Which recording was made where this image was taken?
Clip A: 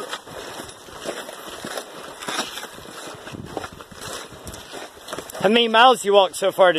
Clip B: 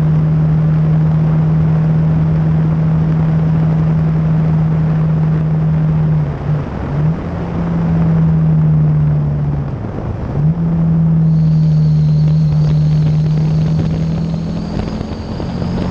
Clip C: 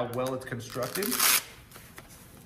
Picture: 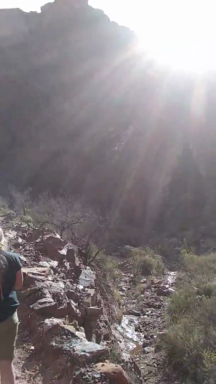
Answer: A